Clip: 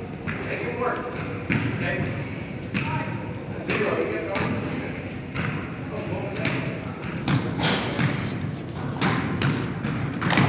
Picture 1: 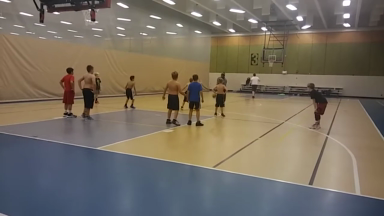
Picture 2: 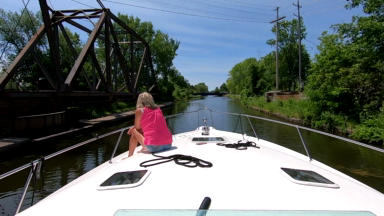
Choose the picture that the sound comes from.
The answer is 1